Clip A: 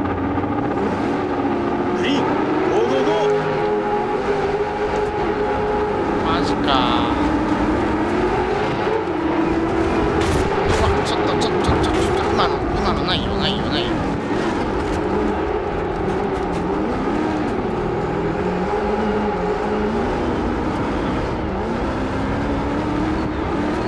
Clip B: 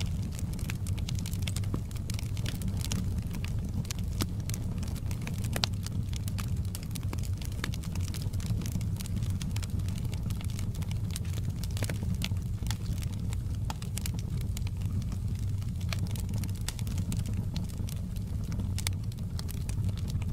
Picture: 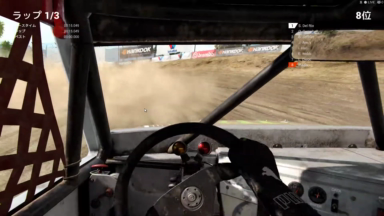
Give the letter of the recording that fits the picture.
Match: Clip A